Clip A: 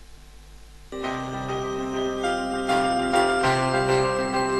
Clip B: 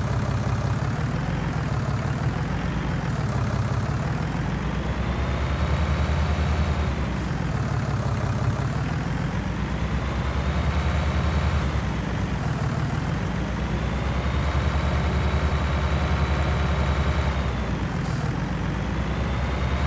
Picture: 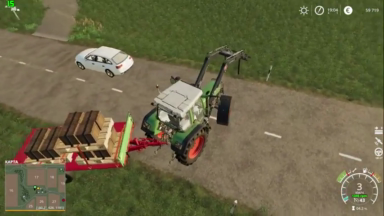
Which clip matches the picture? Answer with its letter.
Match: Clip B